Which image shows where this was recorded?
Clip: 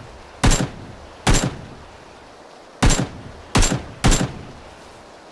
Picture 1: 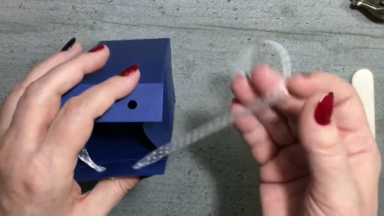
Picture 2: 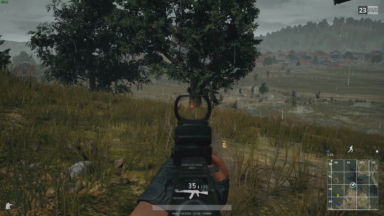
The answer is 2